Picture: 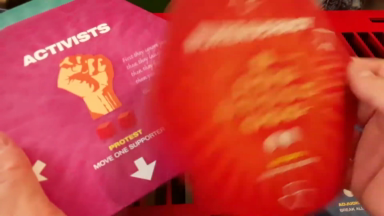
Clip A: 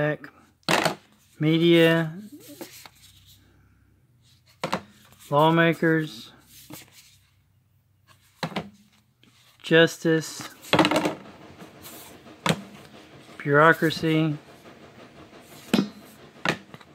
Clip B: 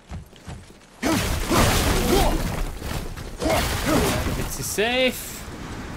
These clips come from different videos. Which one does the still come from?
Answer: A